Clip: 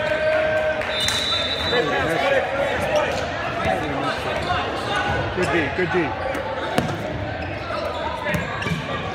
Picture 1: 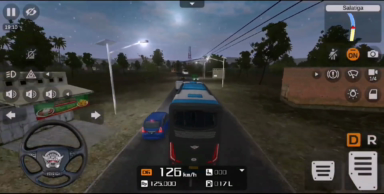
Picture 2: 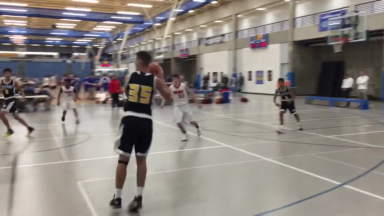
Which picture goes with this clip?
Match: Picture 2